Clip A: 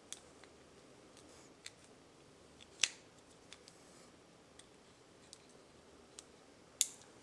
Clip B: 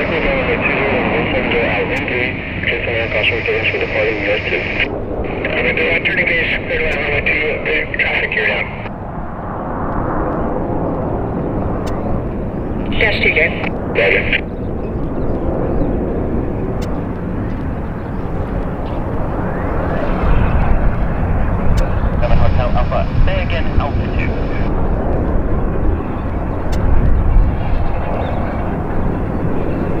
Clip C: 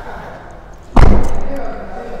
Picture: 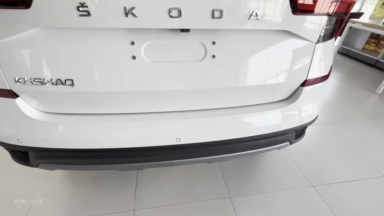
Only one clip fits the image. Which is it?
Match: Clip C